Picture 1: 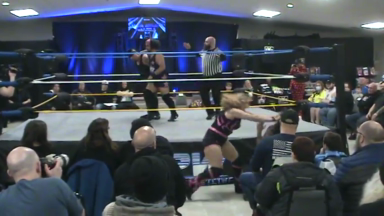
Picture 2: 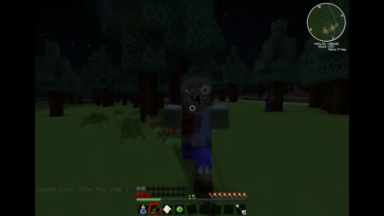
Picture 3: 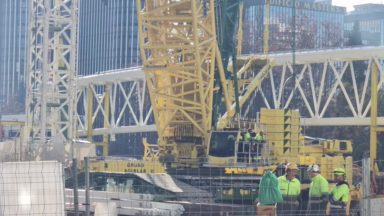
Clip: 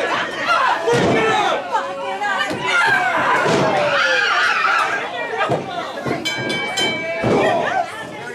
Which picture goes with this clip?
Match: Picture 1